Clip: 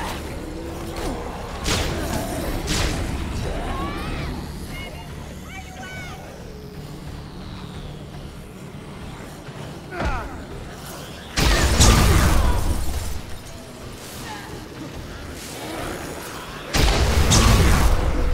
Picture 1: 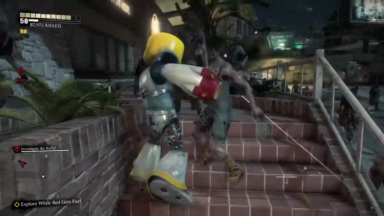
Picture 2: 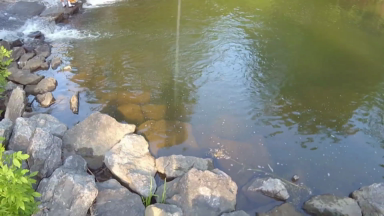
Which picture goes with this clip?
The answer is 1